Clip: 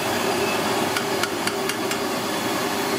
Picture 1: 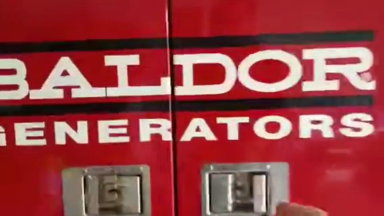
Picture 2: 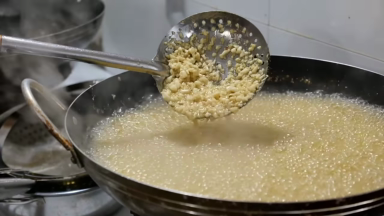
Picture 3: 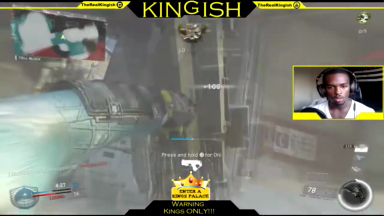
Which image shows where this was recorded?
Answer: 2